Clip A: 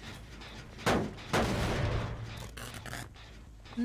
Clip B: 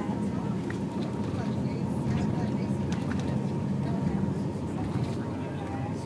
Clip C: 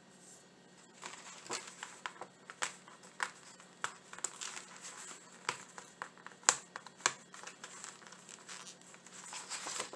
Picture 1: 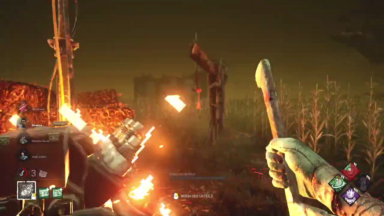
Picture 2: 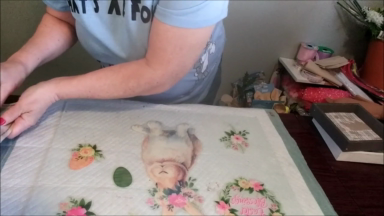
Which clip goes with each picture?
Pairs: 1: A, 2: C